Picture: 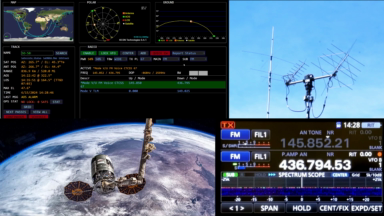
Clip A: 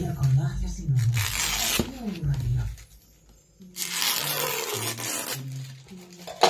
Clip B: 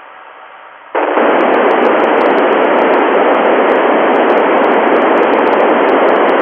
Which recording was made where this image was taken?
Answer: B